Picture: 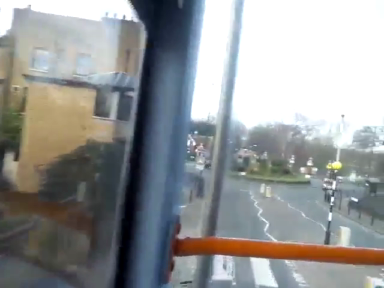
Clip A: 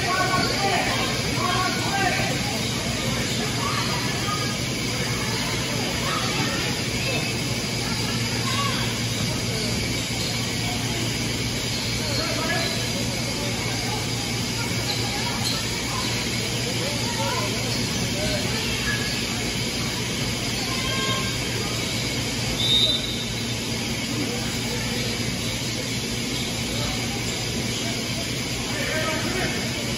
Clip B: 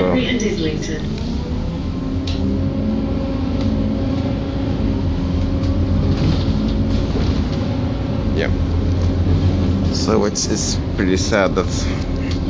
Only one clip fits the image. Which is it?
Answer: B